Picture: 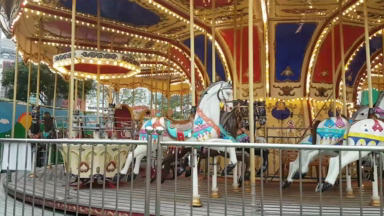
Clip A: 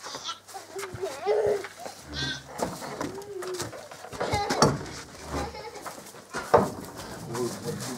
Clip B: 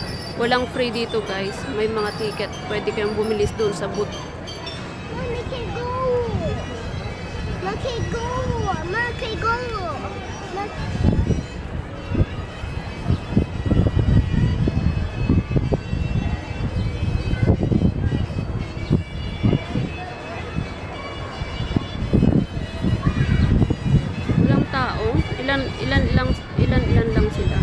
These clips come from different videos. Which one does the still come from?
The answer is B